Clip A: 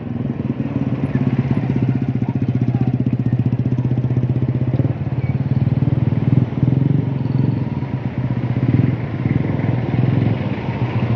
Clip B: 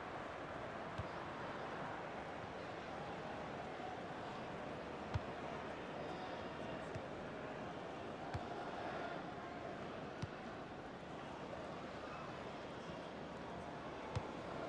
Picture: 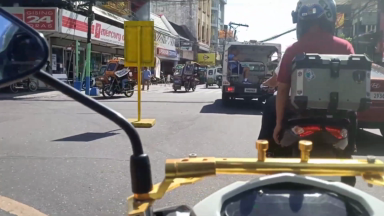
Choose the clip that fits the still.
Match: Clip A